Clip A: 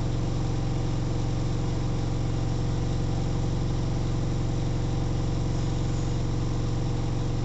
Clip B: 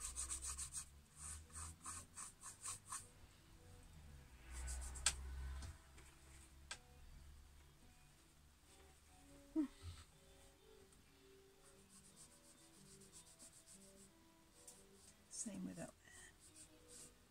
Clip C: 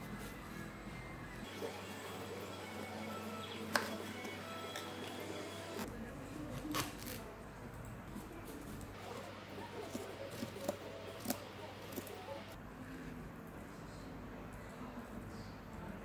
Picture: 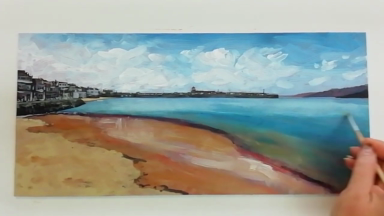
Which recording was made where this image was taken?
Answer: B